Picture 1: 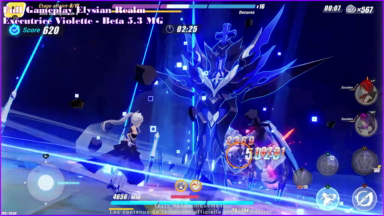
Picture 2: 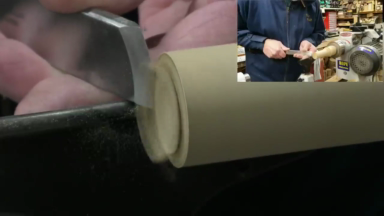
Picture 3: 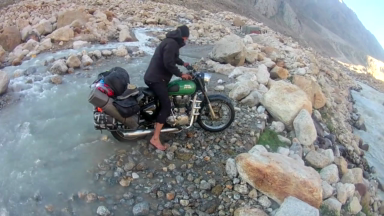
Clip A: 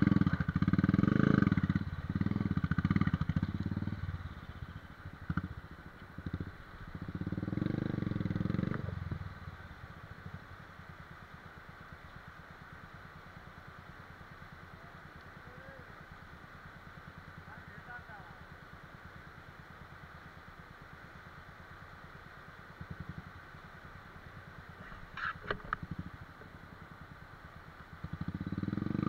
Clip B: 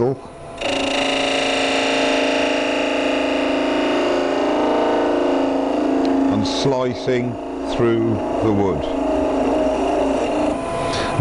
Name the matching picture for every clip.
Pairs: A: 3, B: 2